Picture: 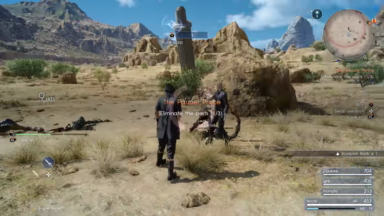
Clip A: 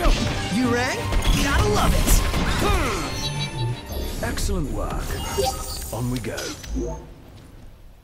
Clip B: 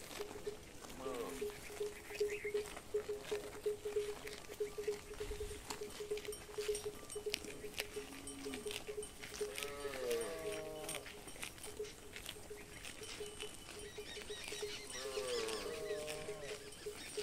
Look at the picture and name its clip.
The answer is A